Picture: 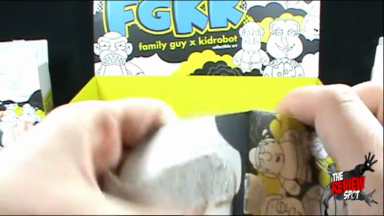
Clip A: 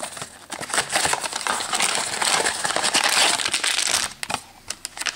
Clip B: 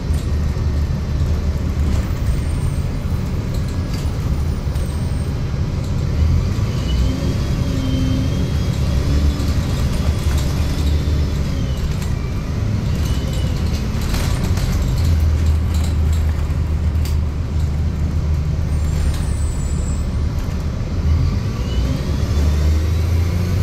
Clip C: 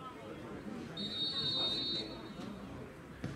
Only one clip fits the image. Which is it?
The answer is A